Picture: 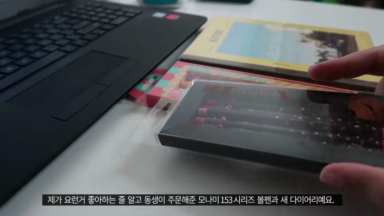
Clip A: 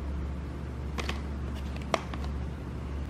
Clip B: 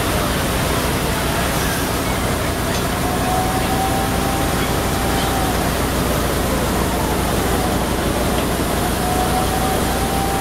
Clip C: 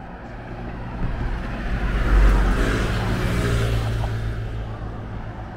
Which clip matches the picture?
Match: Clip A